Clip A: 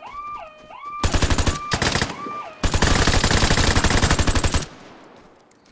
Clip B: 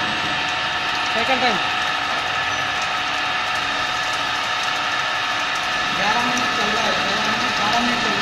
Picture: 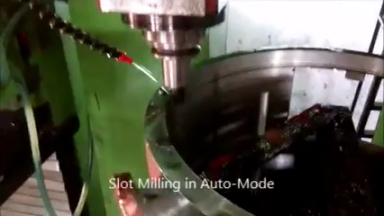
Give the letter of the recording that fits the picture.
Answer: B